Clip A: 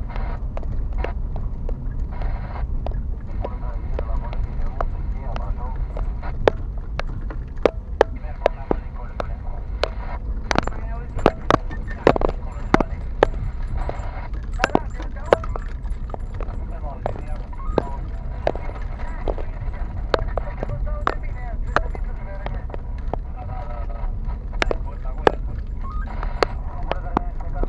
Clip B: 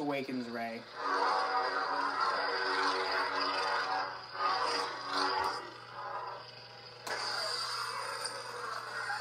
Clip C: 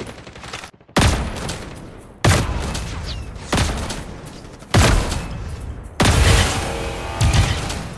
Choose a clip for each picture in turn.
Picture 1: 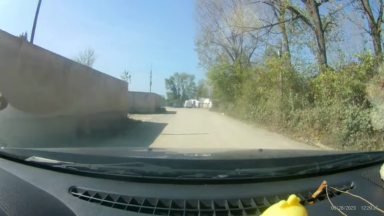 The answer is A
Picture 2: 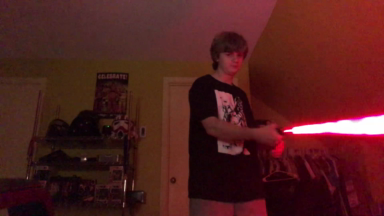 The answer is B